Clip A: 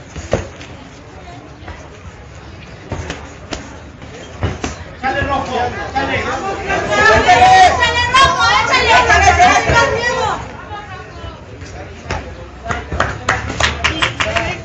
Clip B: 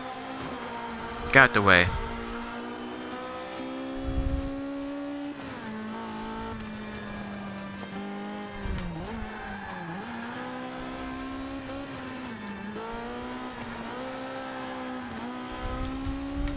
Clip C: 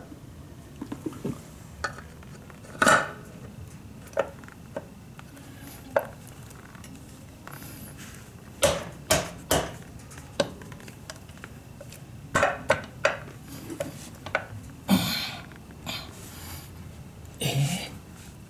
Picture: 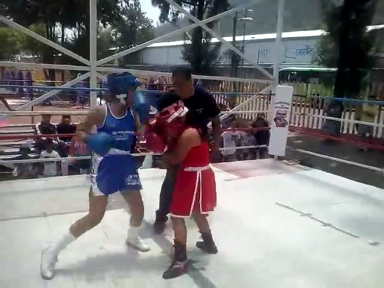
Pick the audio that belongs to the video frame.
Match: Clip A